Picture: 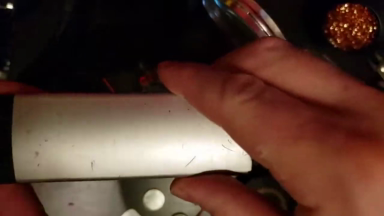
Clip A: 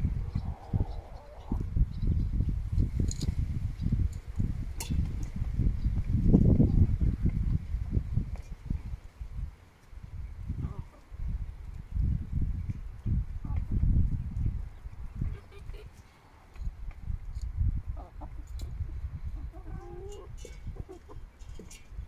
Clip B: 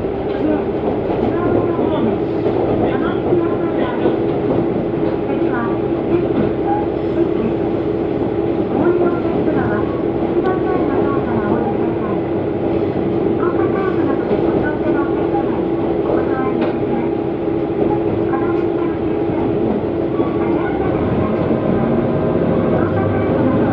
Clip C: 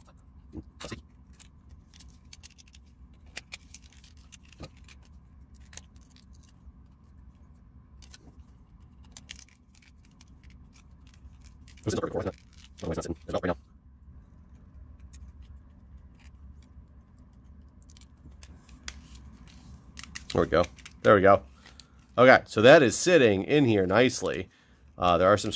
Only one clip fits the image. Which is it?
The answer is C